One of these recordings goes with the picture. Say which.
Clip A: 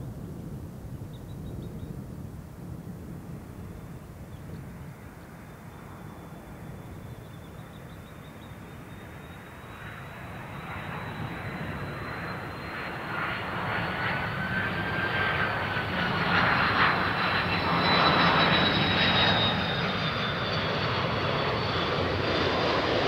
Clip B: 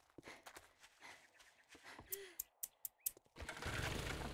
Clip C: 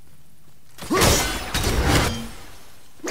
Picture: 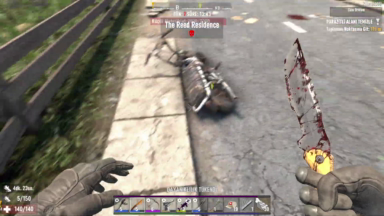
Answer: B